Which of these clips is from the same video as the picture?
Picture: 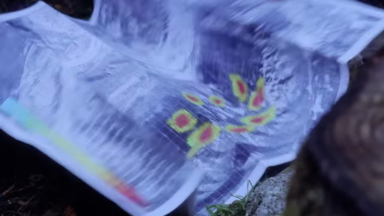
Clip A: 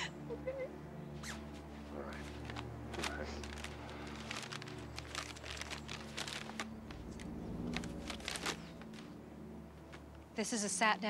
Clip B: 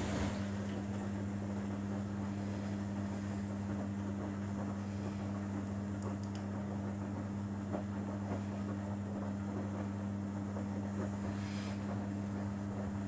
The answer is A